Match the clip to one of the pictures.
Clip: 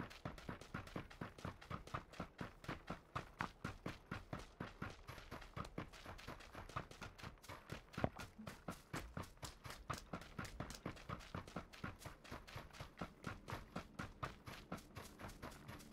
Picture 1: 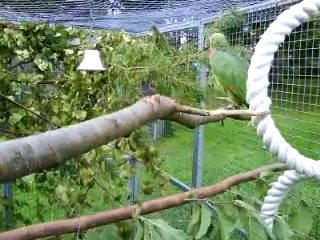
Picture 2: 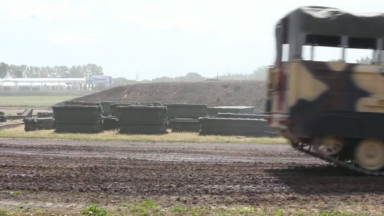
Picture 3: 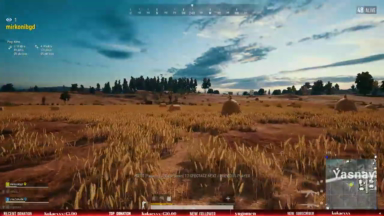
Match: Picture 3